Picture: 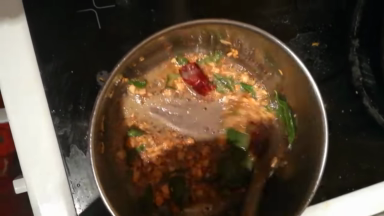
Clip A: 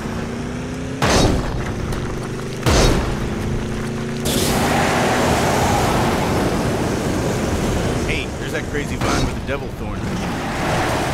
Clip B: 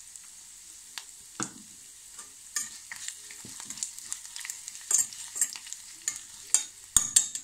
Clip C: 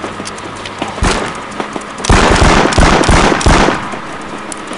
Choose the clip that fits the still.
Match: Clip B